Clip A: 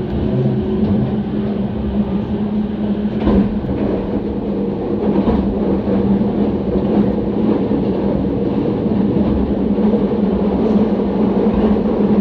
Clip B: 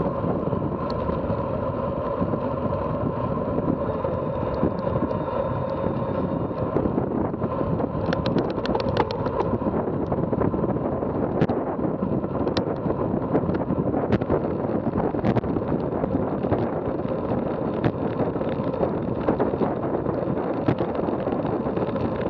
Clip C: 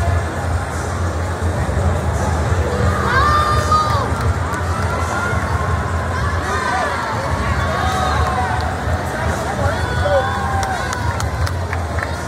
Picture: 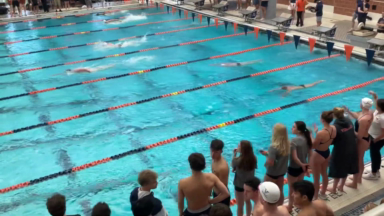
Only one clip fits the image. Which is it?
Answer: C